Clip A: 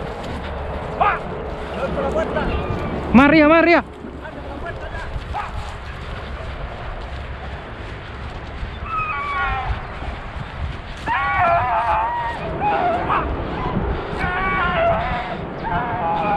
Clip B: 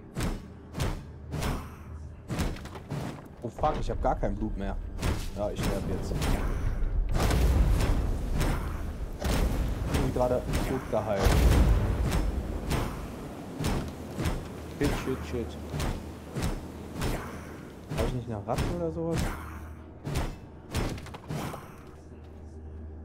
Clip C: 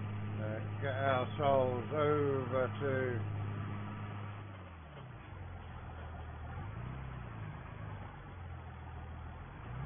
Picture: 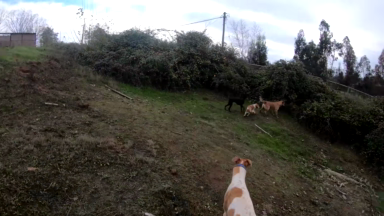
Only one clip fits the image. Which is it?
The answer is A